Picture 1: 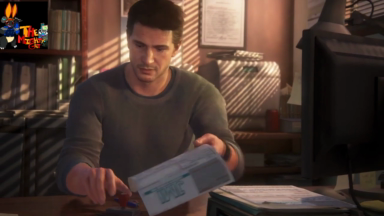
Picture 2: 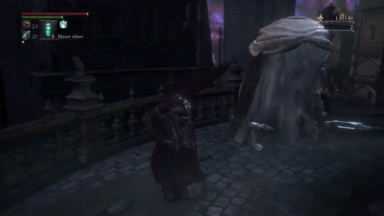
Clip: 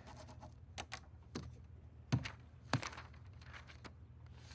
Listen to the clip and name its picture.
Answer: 1